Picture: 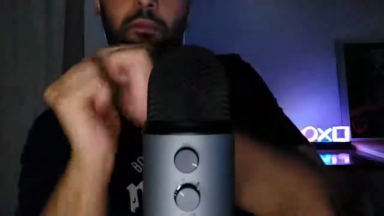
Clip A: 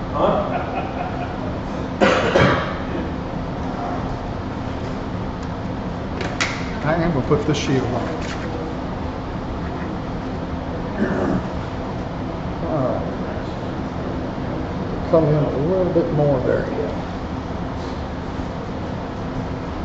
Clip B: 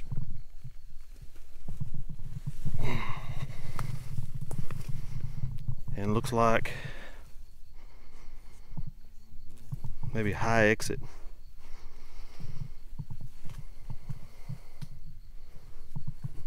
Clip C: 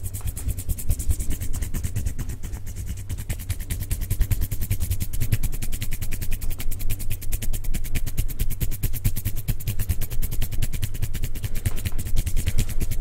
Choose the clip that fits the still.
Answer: C